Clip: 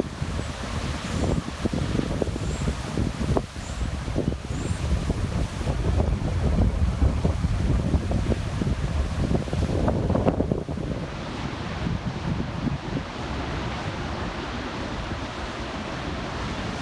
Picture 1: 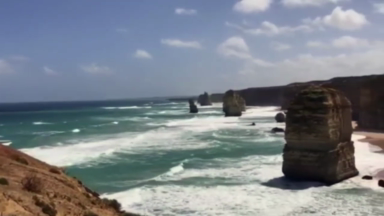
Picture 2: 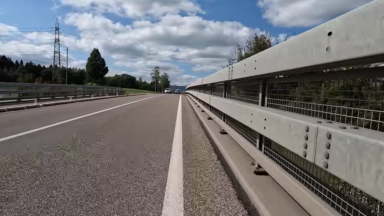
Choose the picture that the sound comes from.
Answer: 1